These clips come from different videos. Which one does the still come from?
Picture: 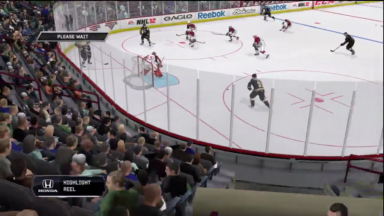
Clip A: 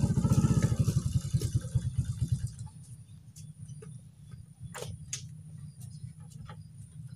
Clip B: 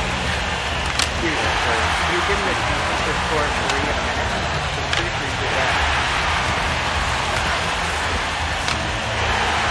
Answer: B